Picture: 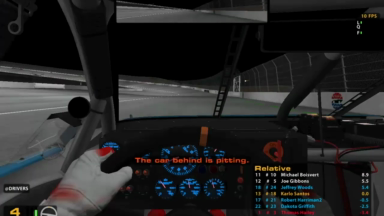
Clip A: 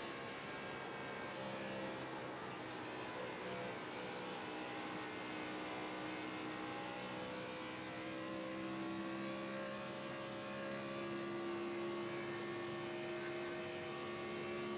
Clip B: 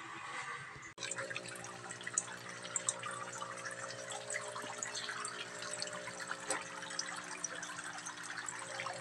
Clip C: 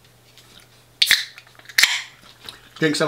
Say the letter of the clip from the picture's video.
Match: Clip A